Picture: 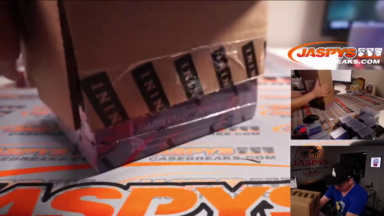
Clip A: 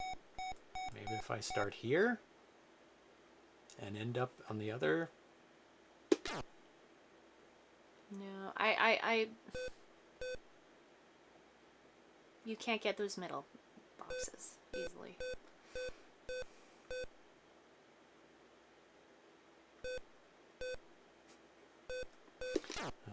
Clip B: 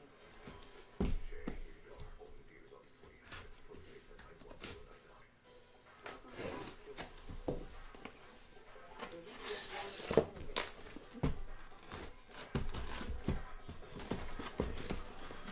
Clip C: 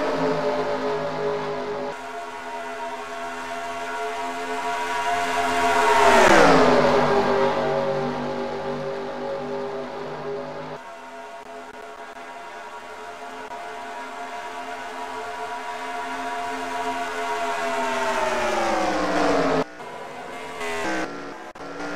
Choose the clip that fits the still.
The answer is B